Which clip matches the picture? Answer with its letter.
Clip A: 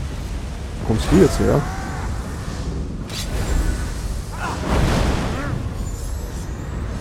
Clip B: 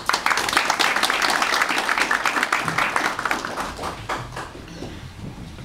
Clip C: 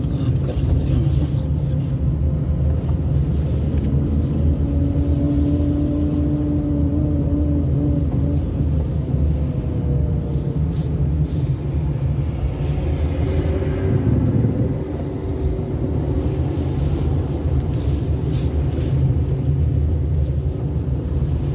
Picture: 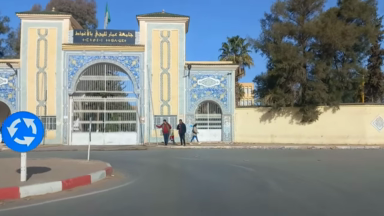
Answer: C